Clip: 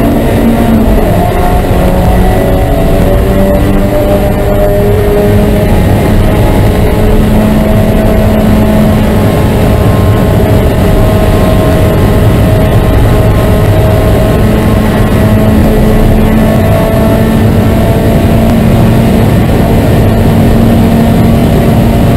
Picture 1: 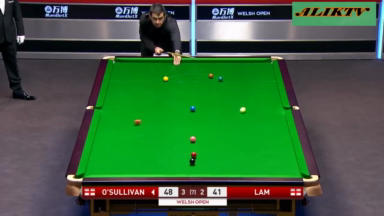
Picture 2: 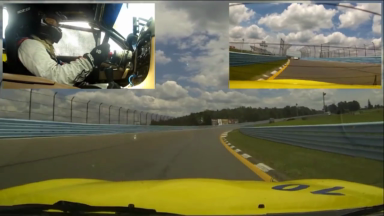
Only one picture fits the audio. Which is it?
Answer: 2